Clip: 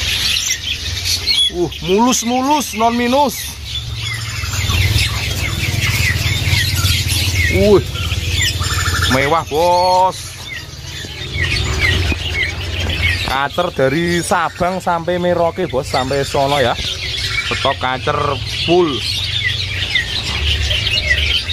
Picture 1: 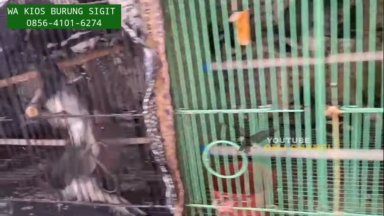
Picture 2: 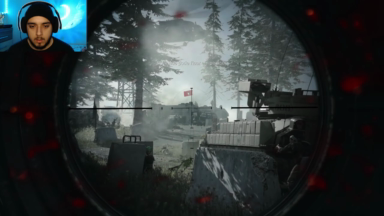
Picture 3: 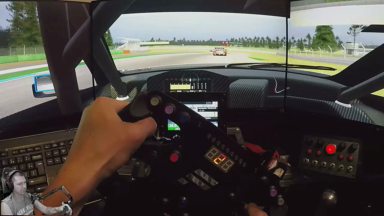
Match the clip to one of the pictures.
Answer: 1